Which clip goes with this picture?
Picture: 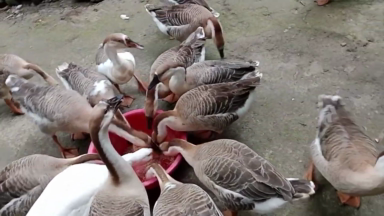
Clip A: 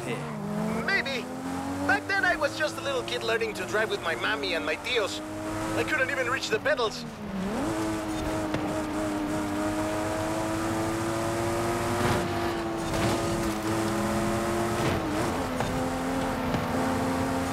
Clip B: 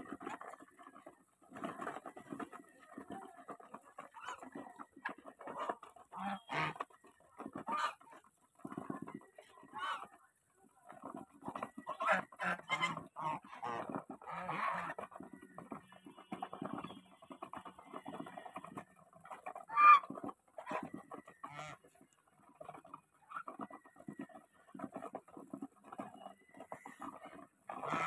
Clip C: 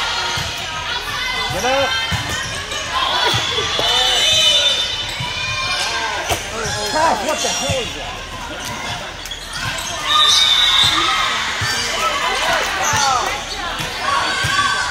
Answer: B